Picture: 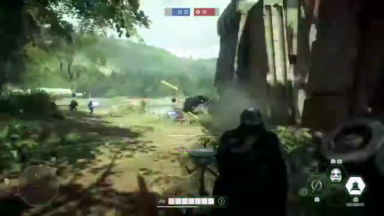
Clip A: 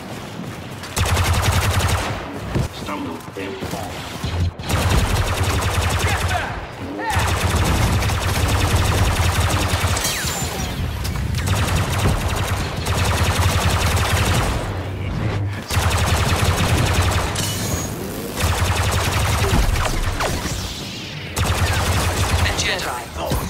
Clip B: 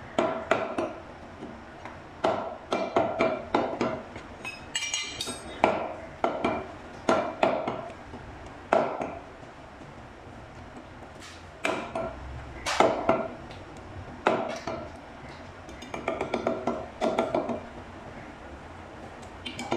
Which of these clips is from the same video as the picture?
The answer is A